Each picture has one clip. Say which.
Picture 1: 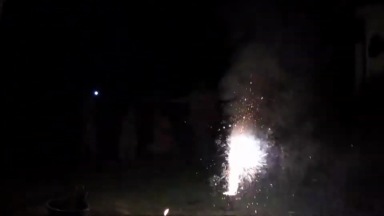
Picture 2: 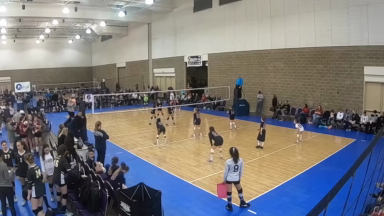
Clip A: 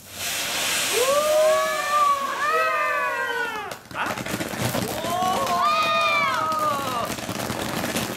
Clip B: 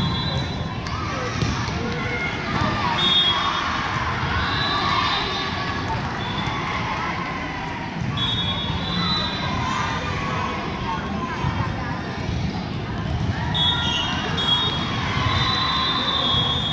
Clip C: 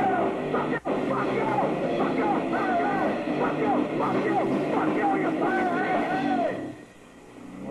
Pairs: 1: A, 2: B